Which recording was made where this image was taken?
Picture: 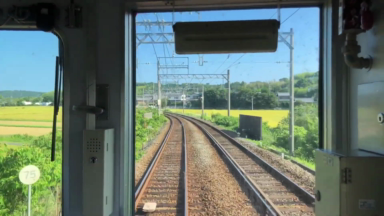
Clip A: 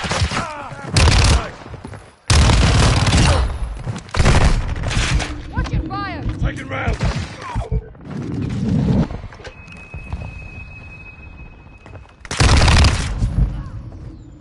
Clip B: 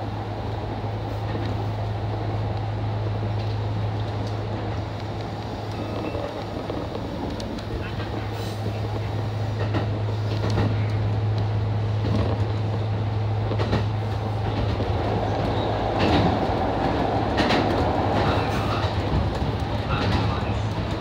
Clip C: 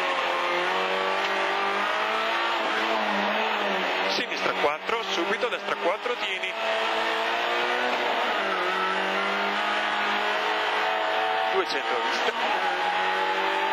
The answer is B